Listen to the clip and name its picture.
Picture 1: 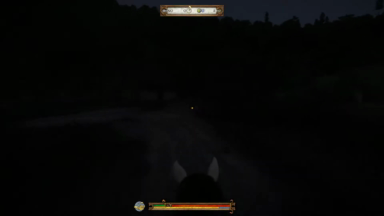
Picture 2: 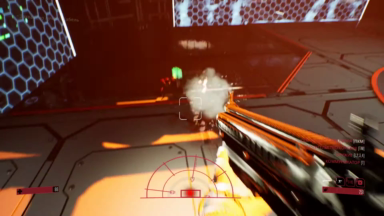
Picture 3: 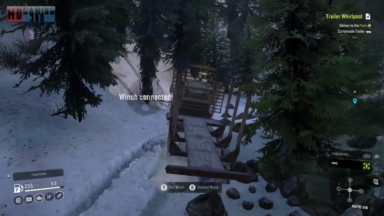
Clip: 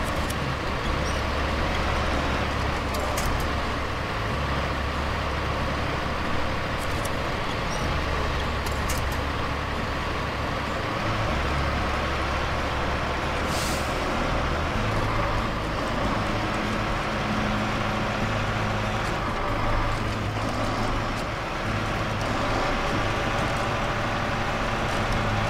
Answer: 3